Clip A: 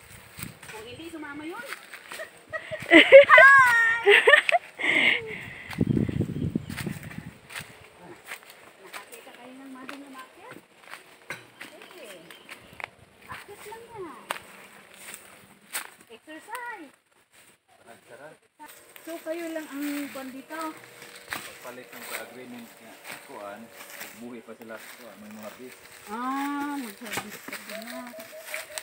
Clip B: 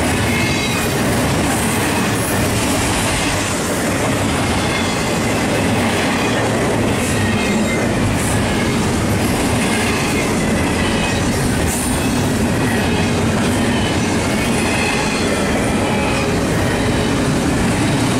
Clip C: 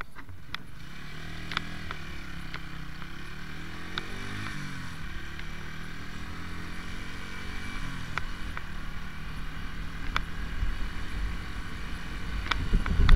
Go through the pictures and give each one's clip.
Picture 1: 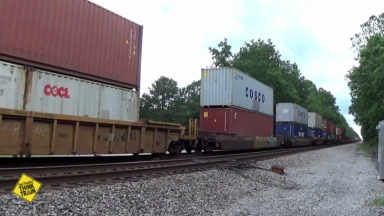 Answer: B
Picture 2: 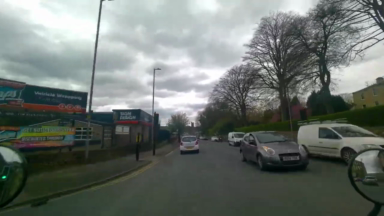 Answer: C